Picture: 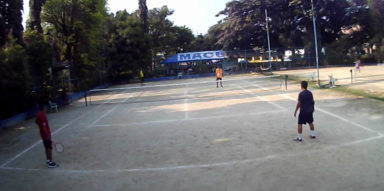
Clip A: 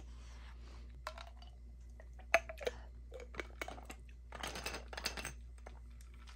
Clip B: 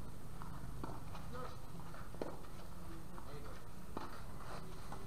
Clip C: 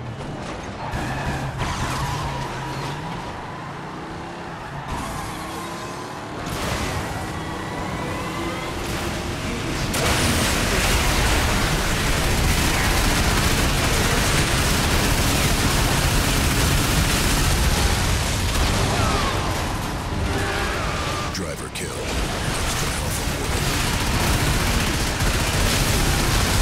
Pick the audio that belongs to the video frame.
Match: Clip B